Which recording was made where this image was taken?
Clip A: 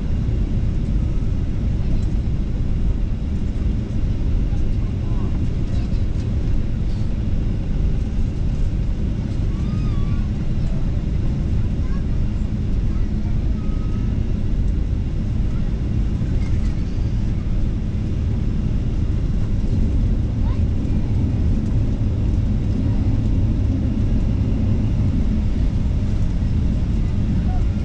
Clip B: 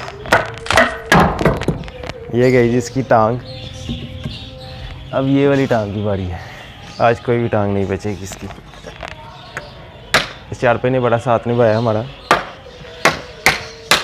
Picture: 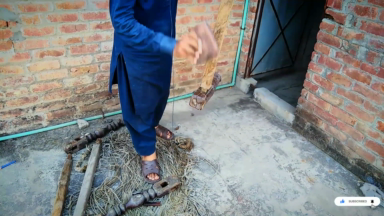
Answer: B